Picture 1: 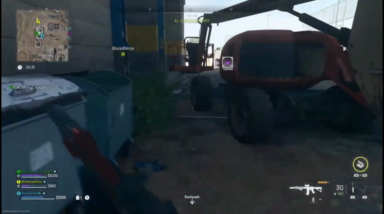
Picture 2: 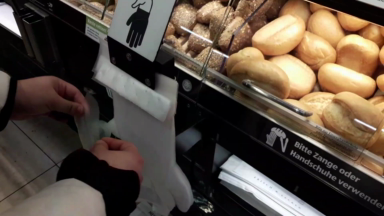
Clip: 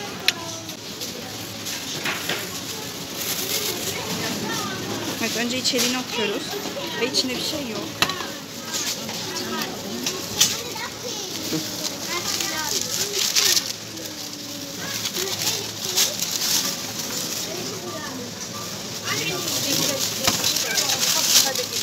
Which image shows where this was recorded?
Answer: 2